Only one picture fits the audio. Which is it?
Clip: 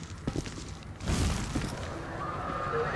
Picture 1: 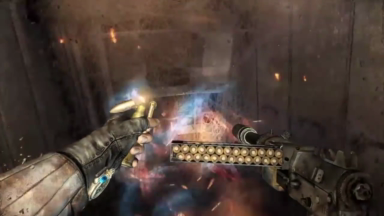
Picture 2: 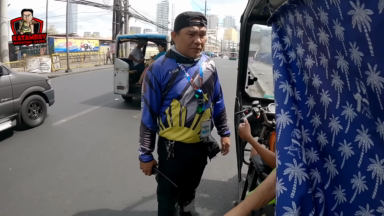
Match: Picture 1